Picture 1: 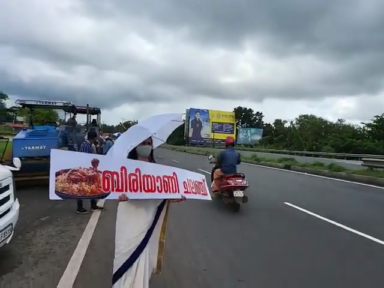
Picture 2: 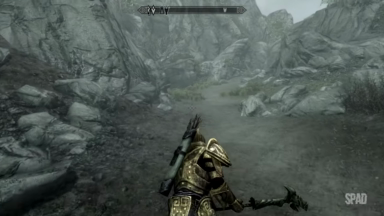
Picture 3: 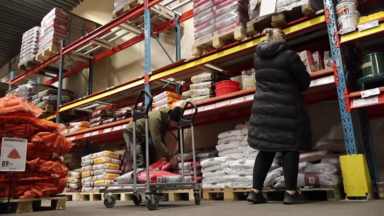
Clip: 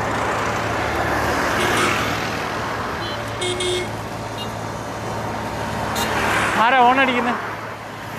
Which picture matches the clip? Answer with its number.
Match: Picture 1